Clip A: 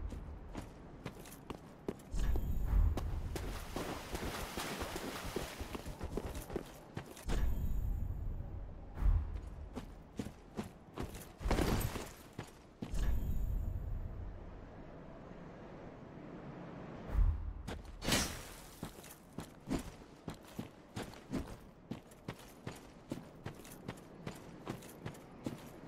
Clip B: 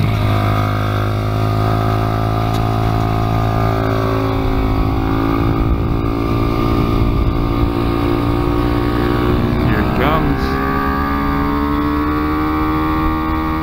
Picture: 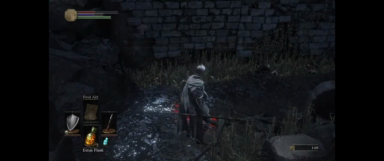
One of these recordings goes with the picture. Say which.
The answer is A